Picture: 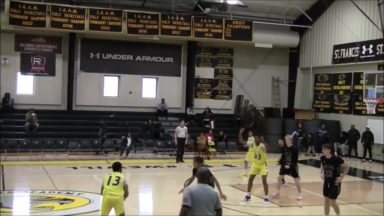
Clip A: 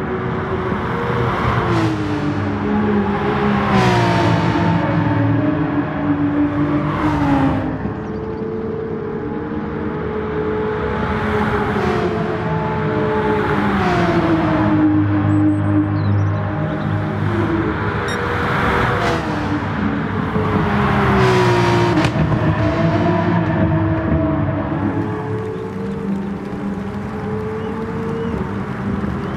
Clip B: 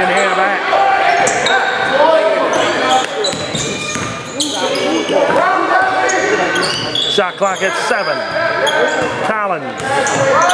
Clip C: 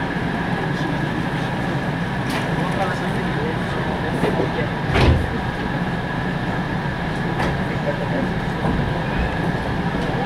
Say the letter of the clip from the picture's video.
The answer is B